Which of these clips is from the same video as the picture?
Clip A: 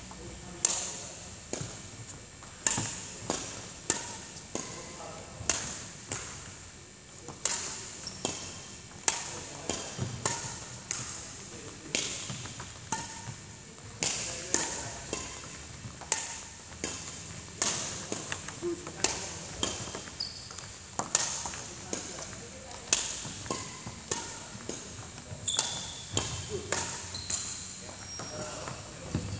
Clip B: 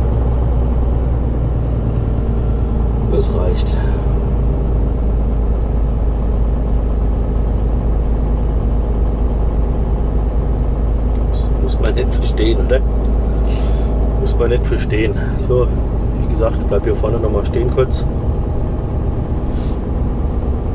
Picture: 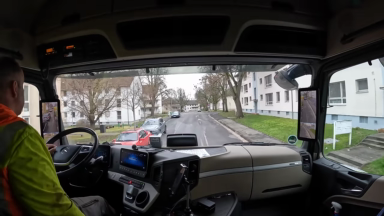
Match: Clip B